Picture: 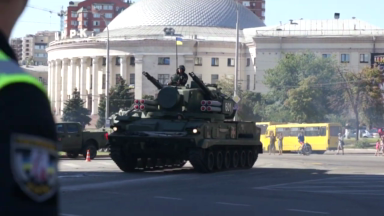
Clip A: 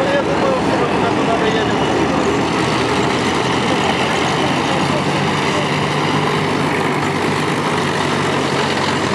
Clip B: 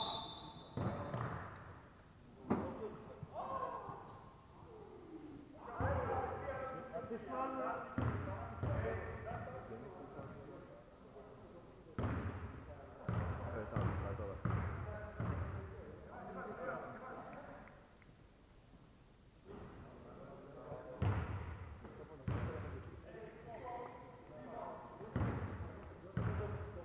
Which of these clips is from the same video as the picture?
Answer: A